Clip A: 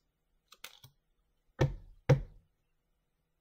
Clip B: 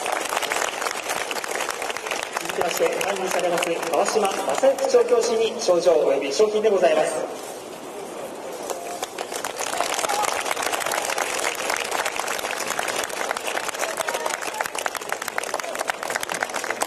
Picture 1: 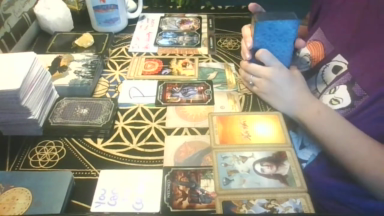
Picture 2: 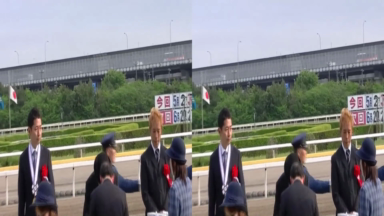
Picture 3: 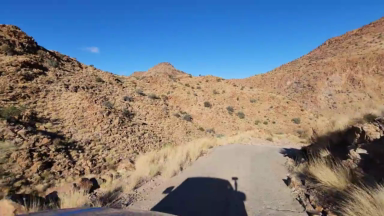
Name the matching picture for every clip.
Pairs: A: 1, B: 2